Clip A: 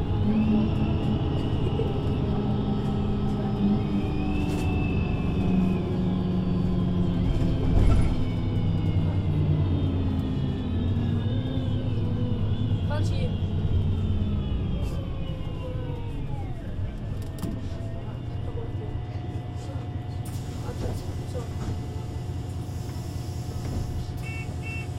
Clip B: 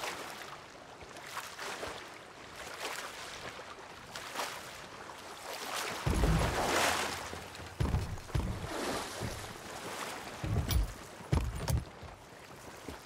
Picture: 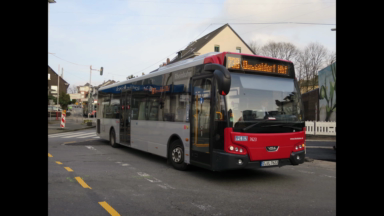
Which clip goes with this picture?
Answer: A